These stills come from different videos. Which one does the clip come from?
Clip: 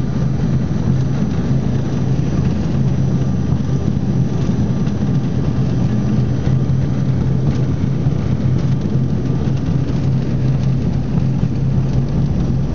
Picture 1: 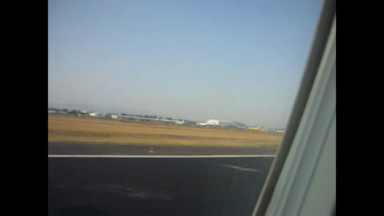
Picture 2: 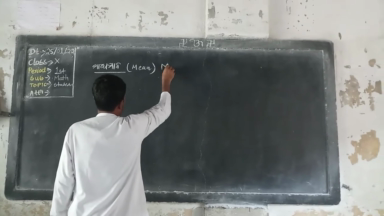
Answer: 1